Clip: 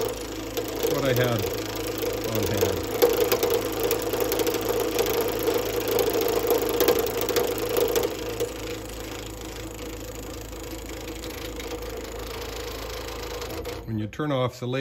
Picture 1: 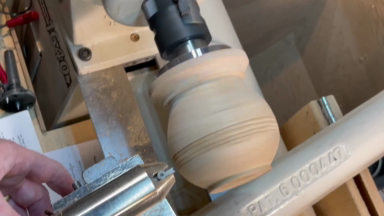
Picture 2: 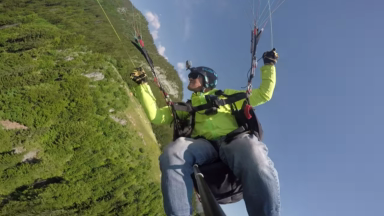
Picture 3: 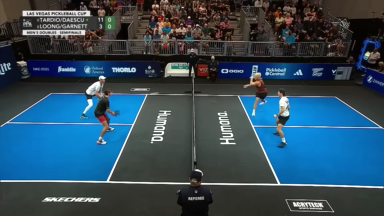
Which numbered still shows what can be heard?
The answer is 1